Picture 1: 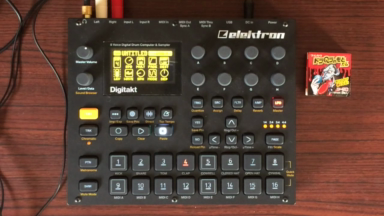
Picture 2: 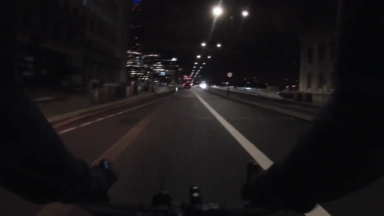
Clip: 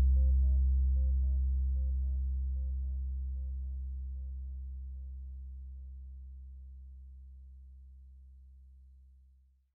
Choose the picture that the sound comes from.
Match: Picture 1